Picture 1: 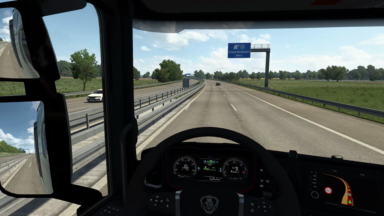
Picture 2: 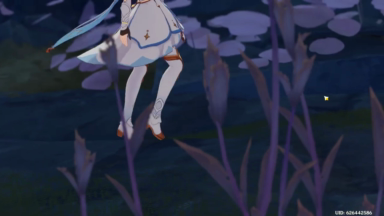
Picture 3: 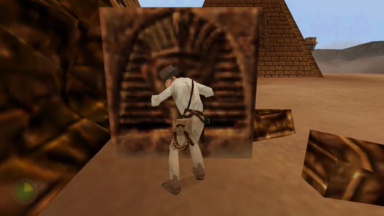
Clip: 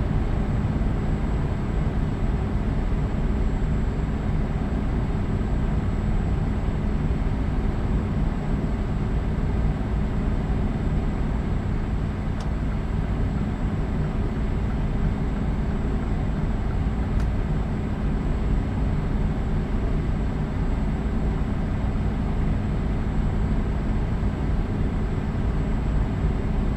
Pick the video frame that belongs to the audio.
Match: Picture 1